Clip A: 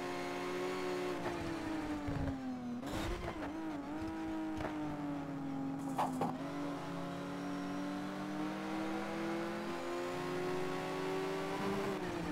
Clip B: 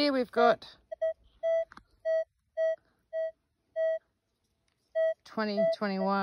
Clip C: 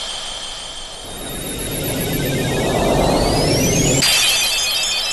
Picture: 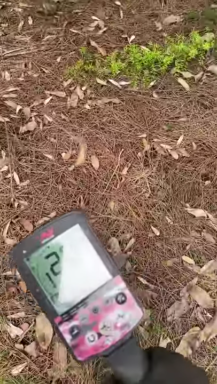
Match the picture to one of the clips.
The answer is B